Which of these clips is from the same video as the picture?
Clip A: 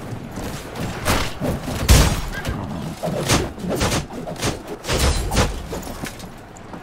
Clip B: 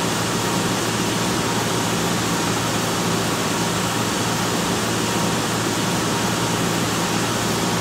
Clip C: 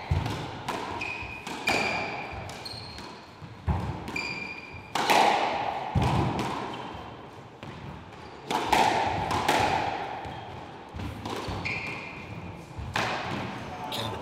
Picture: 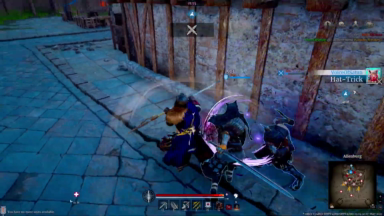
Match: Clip A